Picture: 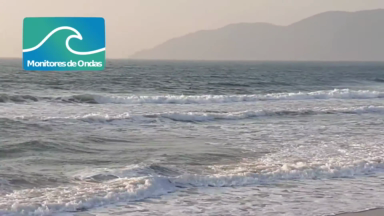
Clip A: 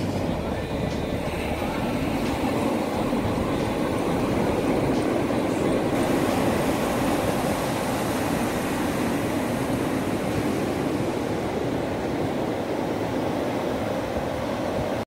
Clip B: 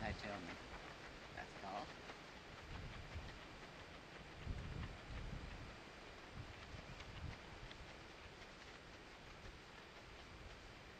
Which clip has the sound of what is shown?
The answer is A